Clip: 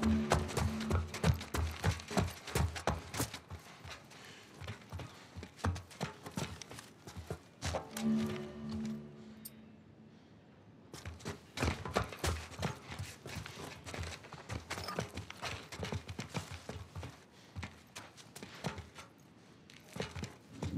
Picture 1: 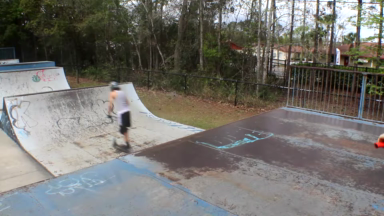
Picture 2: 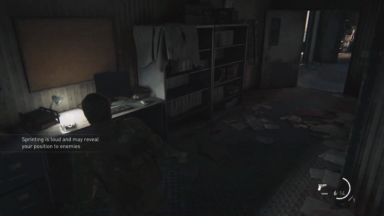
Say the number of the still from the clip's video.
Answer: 2